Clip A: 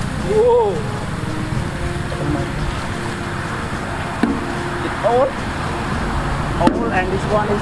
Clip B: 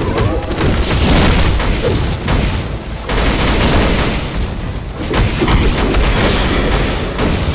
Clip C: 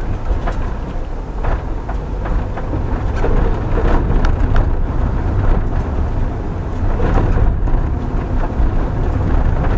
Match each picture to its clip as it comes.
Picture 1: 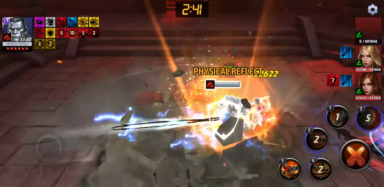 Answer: B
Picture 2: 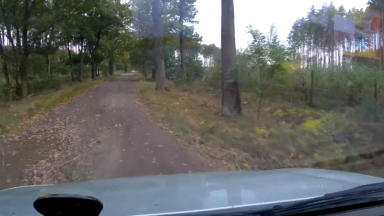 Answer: C